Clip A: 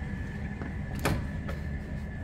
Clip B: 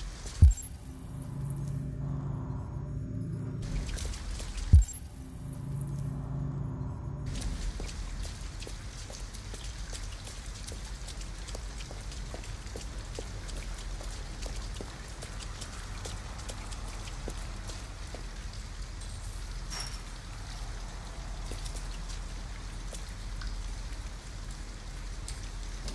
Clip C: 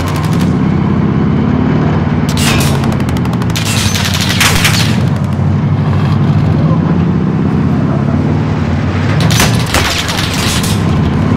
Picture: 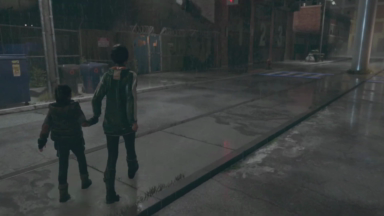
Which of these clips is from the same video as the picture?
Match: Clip B